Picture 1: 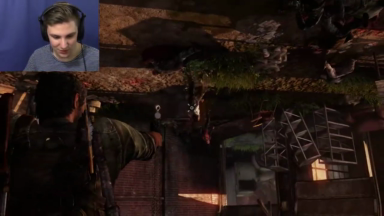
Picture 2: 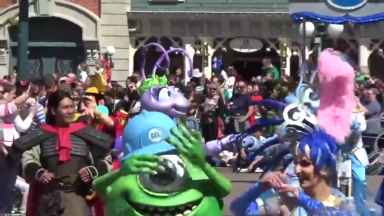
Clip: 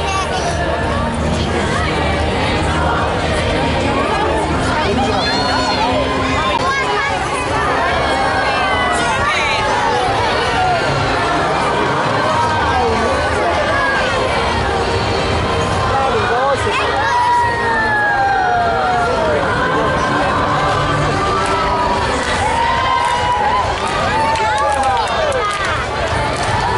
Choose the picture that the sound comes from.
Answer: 2